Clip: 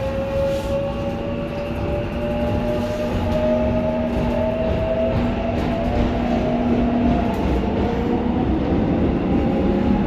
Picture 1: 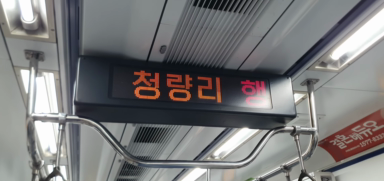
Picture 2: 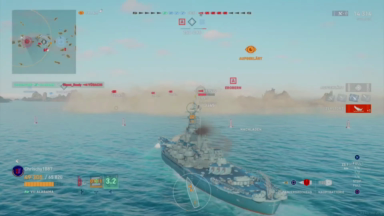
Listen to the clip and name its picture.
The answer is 1